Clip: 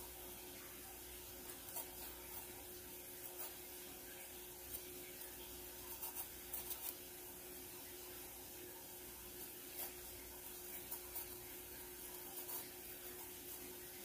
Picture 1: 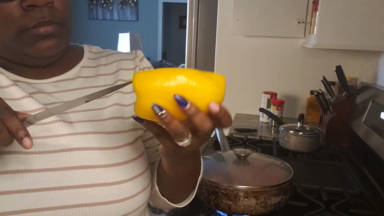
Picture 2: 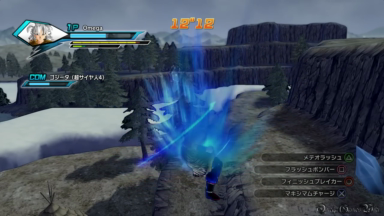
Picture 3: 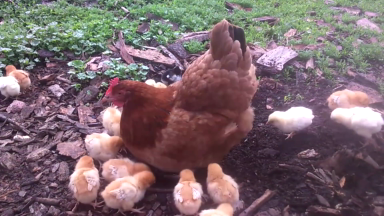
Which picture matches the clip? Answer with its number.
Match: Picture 1